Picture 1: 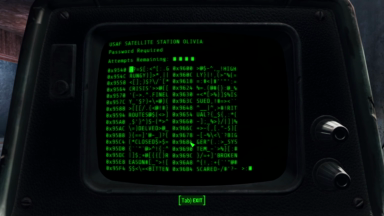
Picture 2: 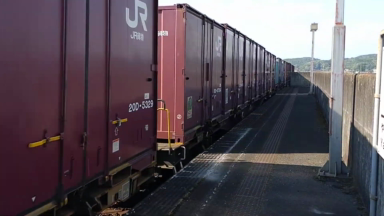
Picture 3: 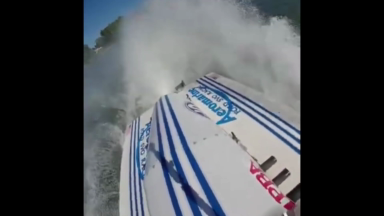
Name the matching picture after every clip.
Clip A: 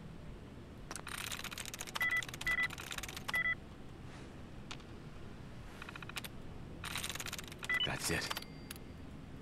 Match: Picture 1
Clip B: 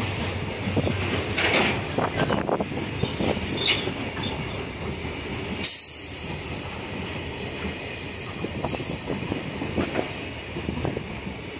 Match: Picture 2